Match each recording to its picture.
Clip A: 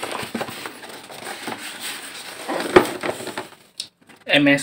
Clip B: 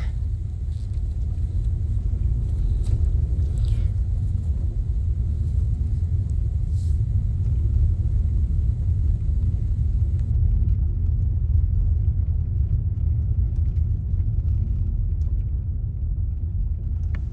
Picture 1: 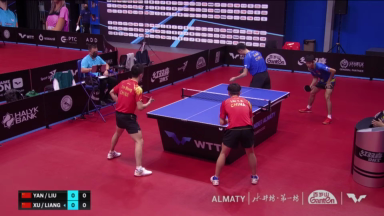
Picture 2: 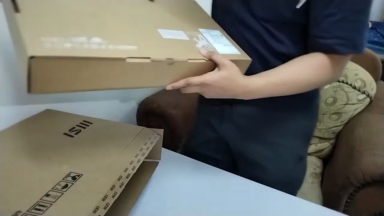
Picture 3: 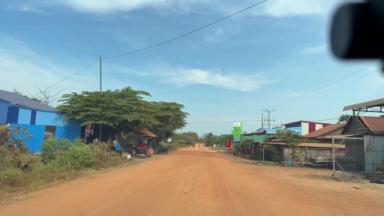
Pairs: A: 2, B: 3